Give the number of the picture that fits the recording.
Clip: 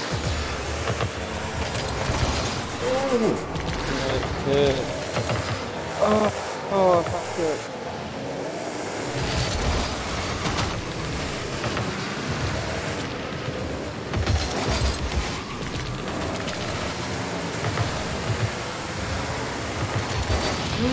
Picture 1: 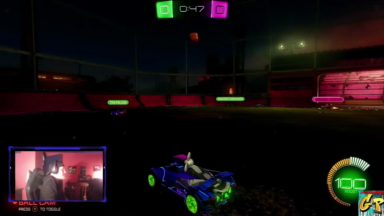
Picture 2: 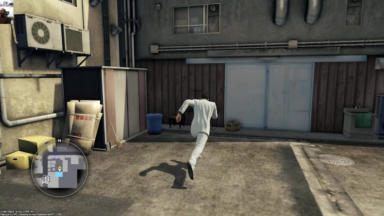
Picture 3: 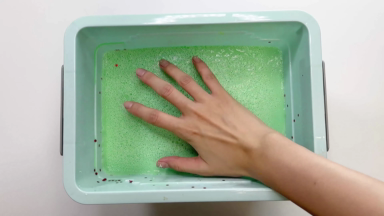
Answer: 1